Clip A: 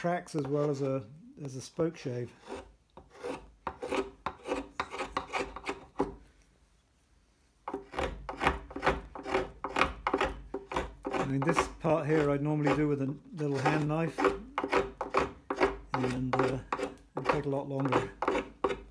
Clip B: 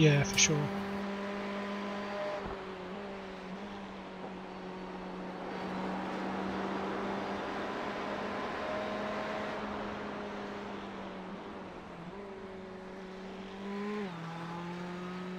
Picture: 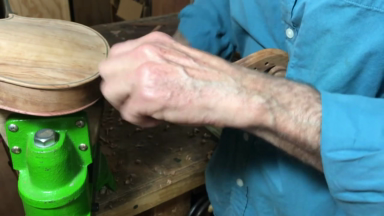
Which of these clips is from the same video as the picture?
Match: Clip A